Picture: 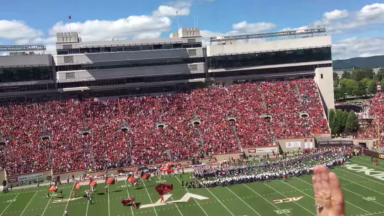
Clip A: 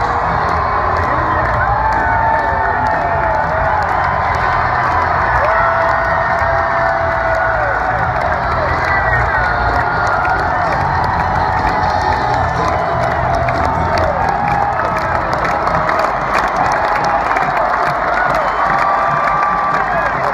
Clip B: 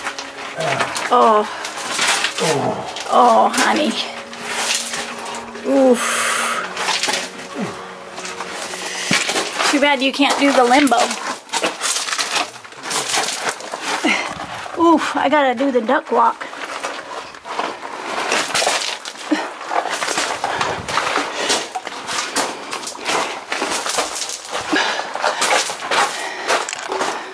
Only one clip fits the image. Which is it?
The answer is A